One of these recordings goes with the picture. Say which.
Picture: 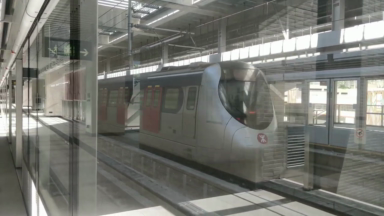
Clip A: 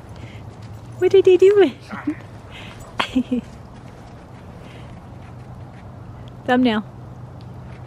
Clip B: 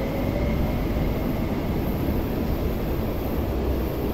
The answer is B